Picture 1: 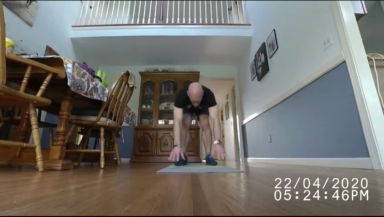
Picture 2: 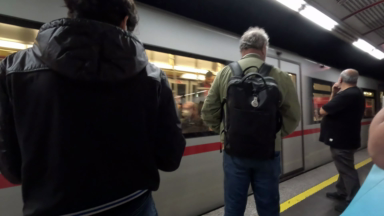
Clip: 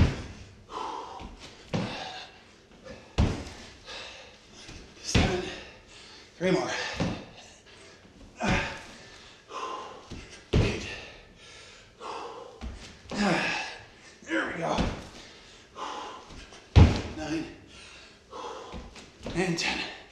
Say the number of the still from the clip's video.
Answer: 1